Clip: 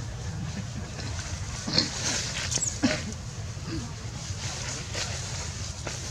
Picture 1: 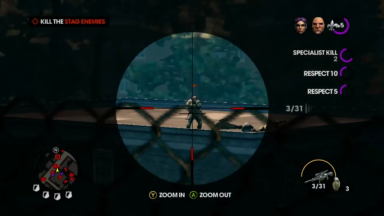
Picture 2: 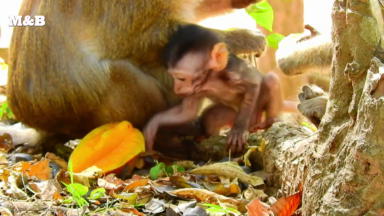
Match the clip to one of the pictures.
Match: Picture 2